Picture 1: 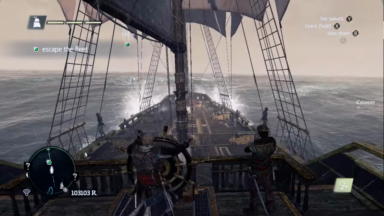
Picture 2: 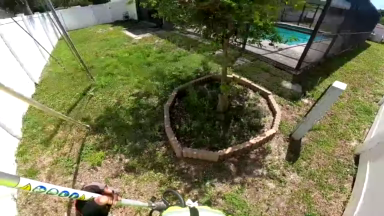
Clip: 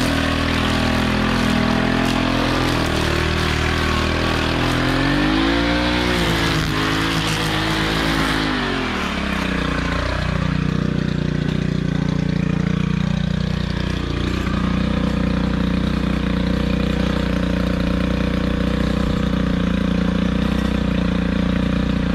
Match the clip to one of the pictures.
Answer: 2